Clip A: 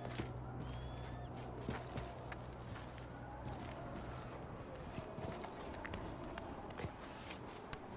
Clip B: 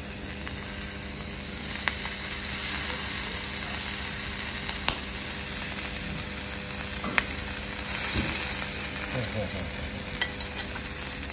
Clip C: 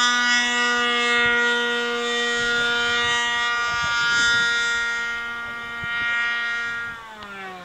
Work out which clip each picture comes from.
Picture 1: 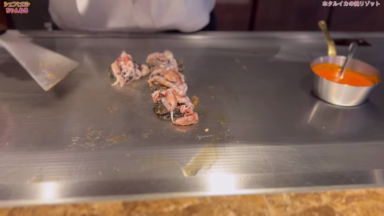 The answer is B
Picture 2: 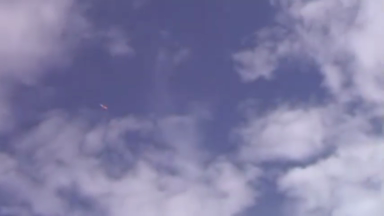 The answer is C